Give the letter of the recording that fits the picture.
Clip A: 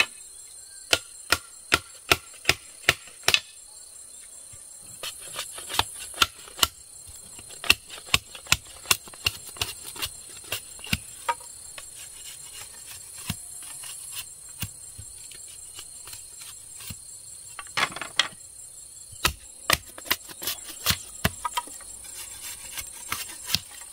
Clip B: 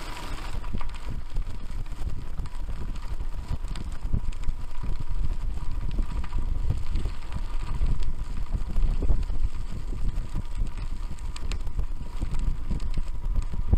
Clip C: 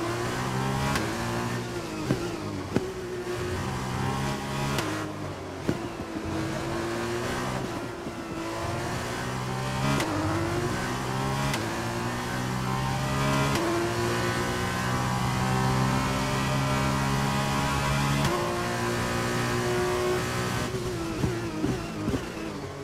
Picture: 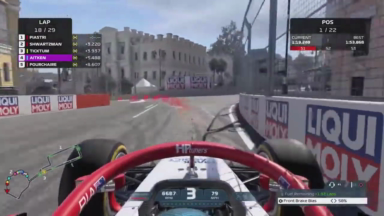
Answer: C